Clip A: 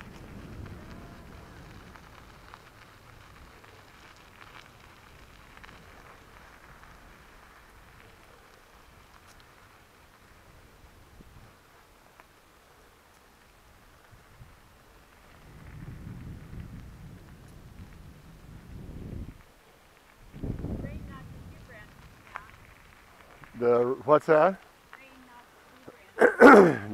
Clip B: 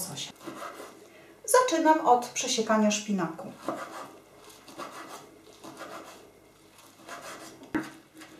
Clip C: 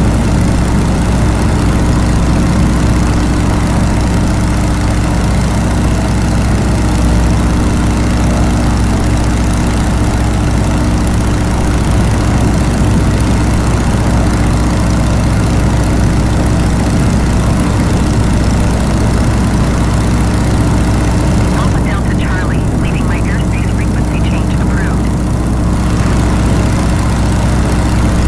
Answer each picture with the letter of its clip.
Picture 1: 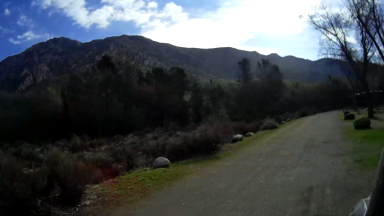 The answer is A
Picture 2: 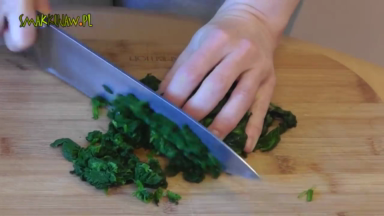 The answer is B